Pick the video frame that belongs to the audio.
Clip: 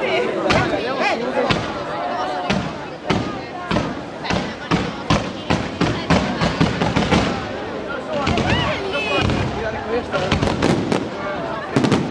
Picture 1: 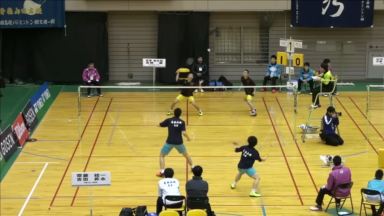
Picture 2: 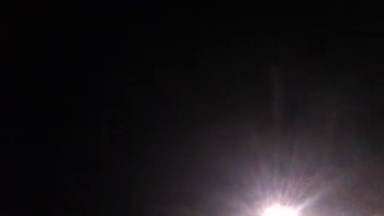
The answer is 2